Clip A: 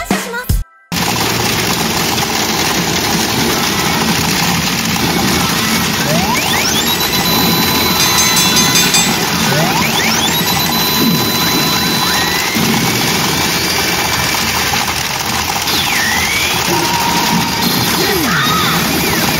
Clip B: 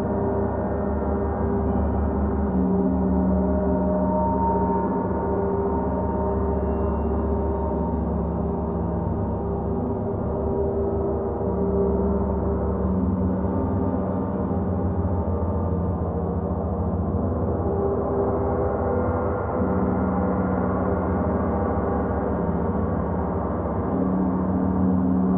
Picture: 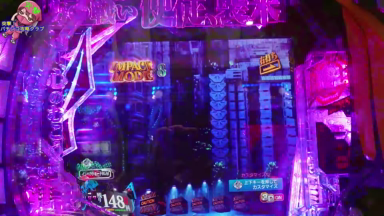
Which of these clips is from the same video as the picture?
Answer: A